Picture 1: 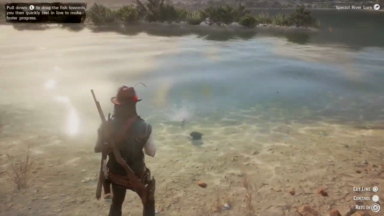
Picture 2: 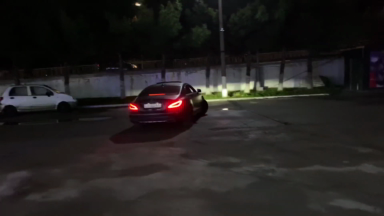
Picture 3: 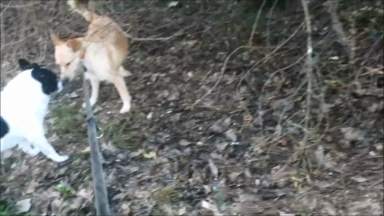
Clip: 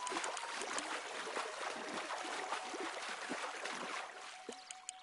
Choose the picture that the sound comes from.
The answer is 1